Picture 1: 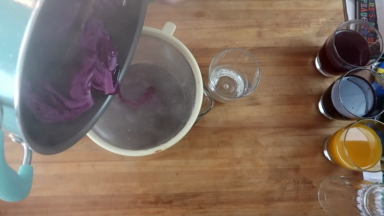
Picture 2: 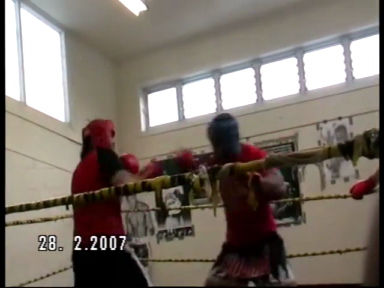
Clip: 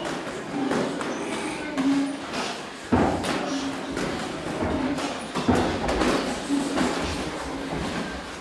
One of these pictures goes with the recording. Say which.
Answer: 2